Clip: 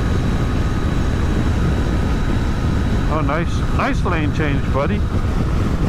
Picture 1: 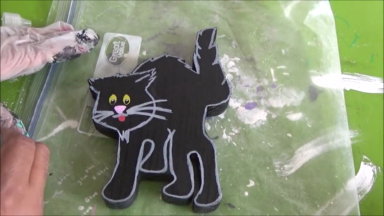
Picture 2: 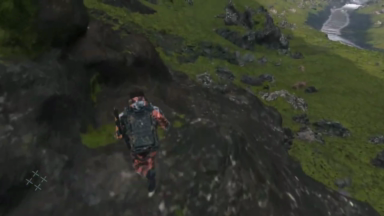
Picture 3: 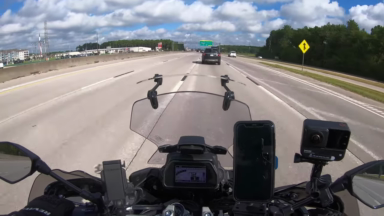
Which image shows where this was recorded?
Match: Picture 3